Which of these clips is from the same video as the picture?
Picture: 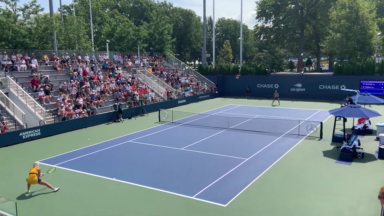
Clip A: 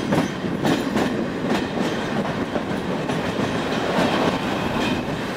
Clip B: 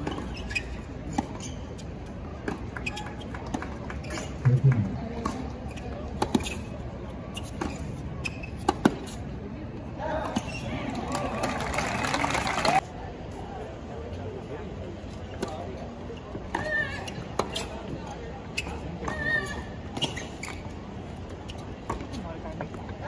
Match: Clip B